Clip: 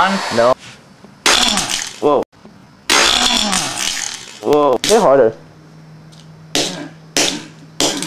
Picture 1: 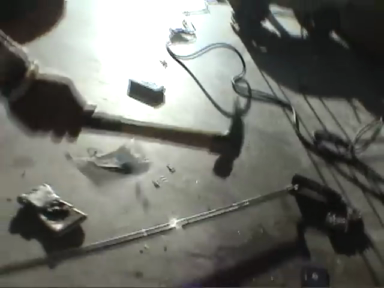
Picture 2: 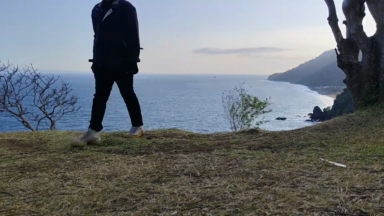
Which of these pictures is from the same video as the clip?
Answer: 1